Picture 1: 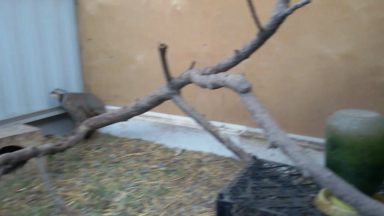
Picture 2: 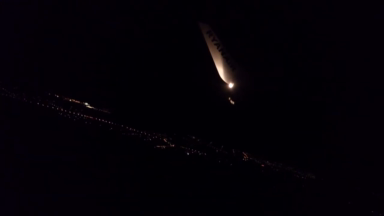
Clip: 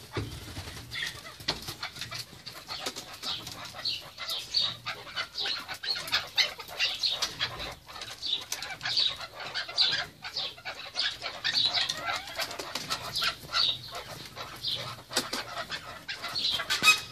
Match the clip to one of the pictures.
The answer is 1